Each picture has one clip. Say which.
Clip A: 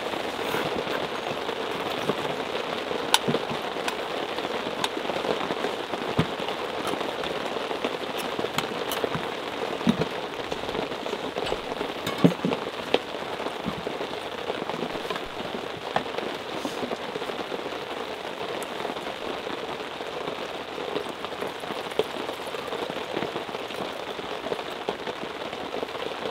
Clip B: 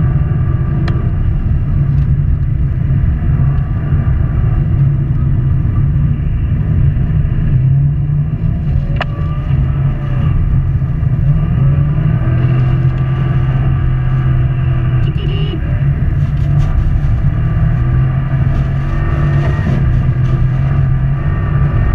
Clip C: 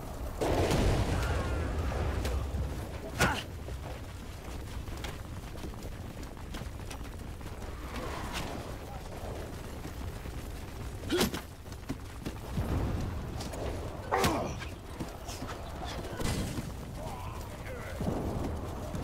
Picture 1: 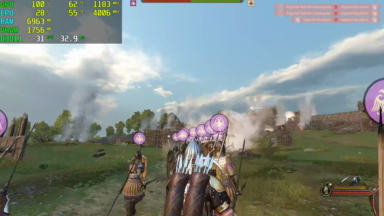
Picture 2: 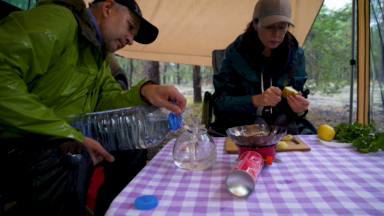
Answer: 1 C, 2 A